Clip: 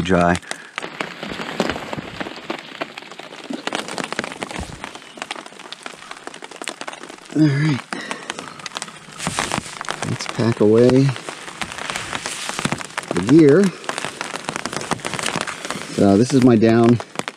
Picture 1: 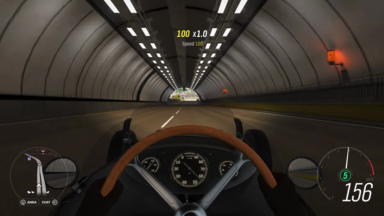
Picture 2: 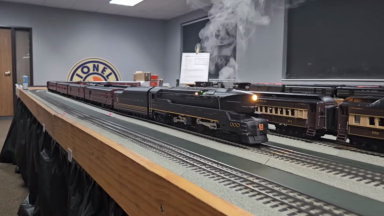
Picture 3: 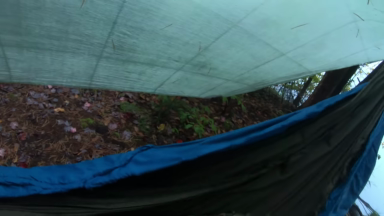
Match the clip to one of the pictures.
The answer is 3